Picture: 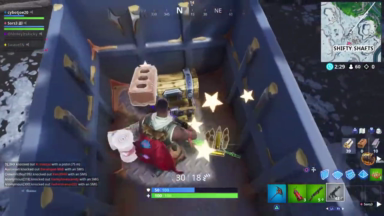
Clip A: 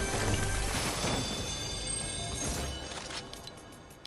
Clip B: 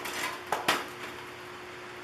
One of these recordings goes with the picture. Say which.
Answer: A